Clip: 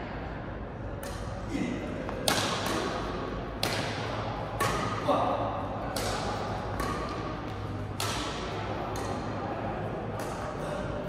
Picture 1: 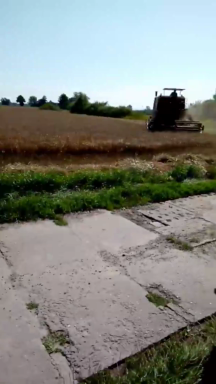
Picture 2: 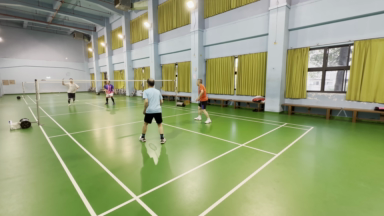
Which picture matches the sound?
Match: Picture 2